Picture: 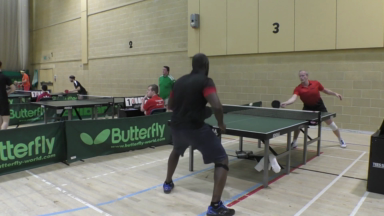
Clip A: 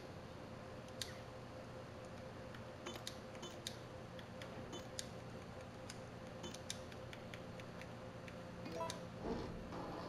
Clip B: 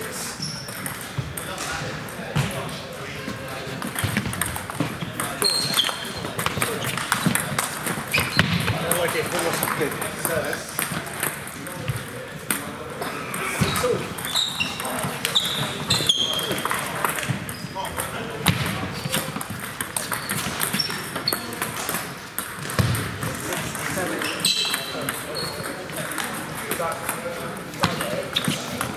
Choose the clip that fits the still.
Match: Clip B